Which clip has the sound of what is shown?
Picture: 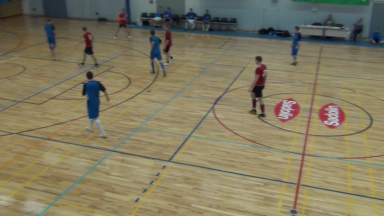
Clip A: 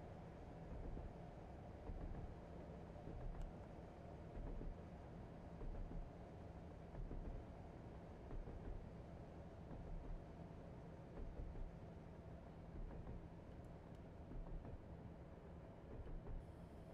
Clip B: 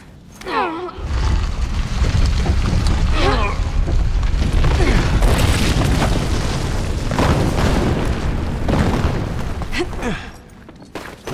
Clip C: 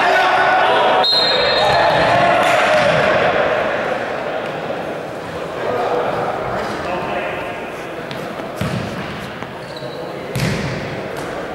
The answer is C